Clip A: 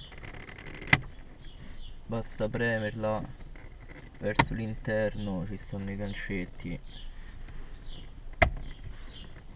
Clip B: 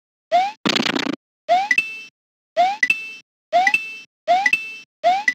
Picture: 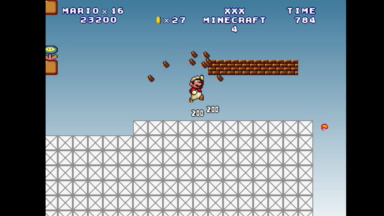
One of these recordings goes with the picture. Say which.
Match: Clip B